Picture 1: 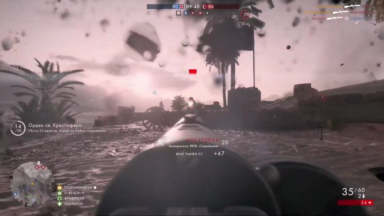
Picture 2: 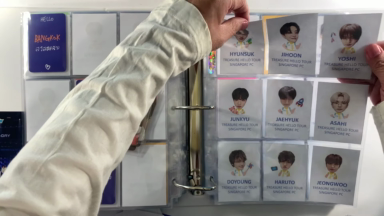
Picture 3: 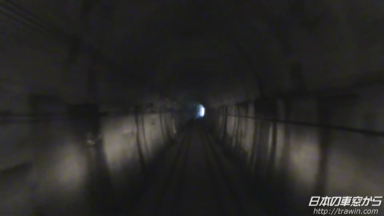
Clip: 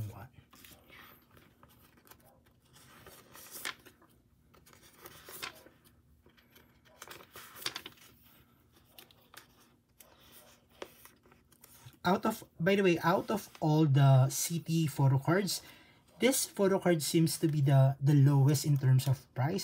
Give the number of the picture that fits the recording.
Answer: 2